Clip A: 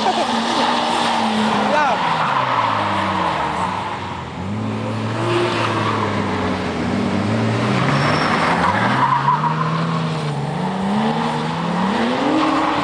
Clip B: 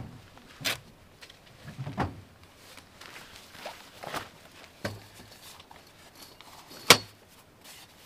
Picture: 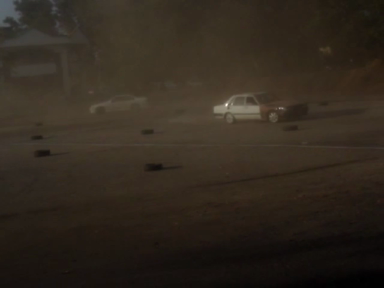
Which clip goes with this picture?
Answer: A